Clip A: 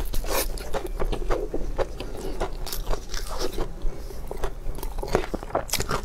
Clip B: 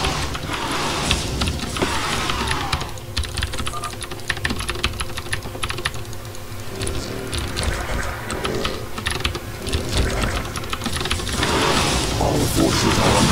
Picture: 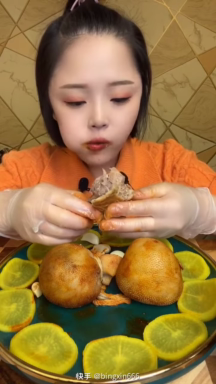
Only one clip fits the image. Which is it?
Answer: A